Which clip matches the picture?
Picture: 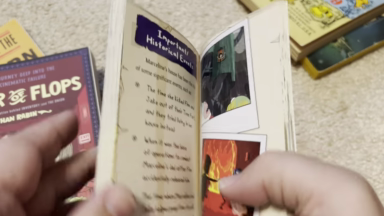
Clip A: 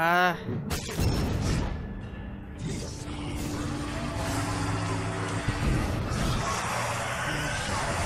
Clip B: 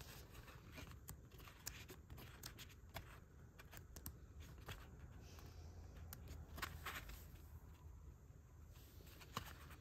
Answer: B